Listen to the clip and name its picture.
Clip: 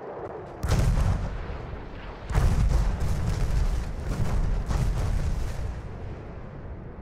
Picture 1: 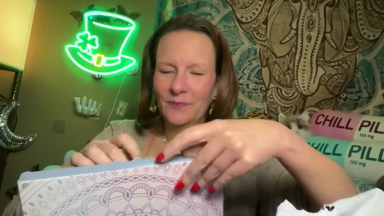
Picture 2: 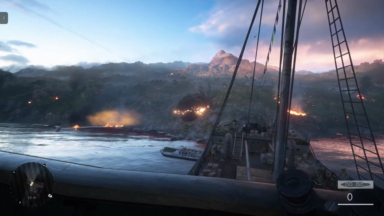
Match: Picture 2